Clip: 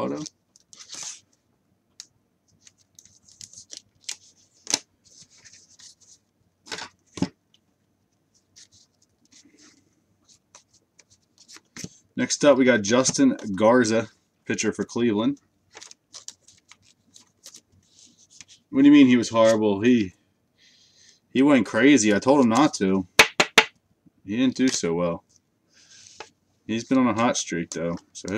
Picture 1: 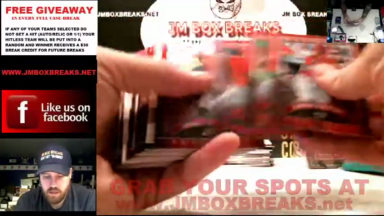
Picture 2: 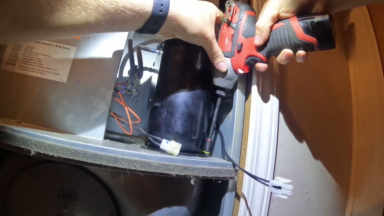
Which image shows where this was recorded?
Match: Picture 1